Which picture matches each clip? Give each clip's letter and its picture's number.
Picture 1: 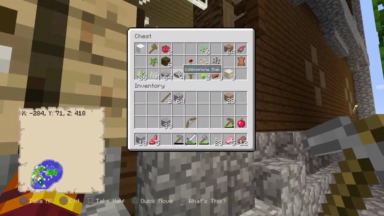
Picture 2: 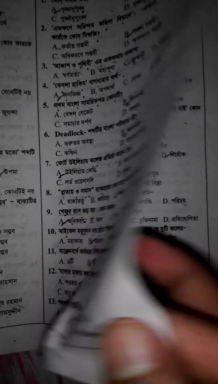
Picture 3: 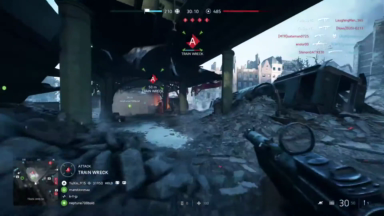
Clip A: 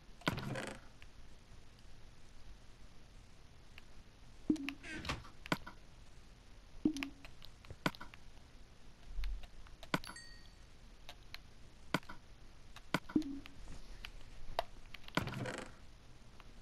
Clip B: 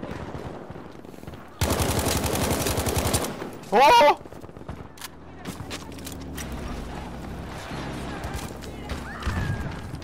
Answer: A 1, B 3